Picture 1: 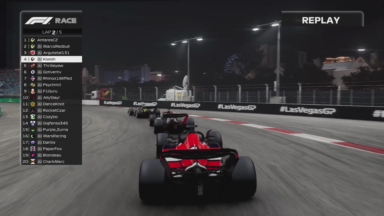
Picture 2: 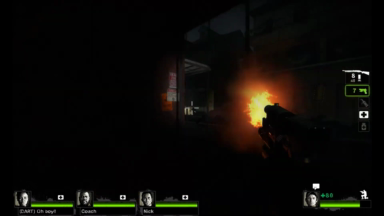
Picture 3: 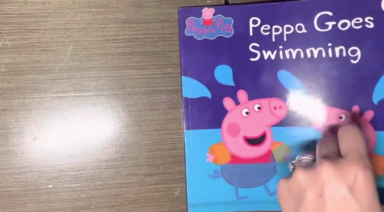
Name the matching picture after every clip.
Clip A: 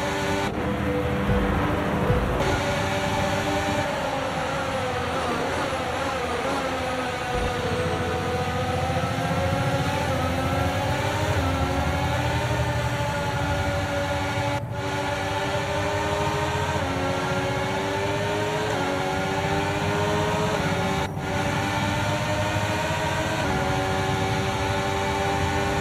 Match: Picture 1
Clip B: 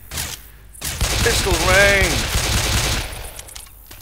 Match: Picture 2